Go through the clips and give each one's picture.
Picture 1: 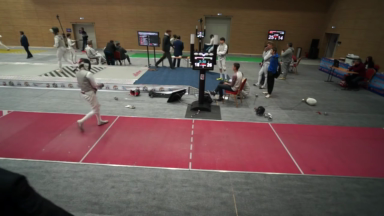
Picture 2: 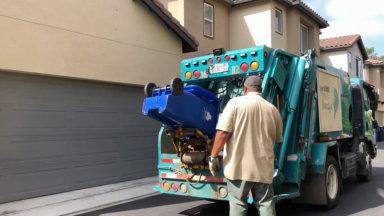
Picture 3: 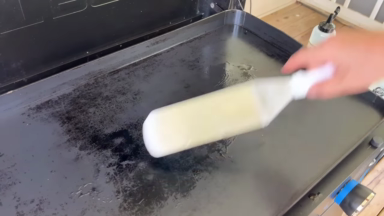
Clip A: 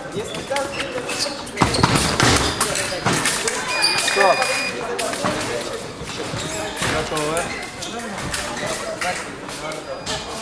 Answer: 1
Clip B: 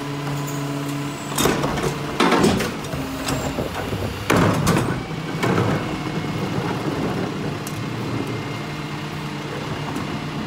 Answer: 2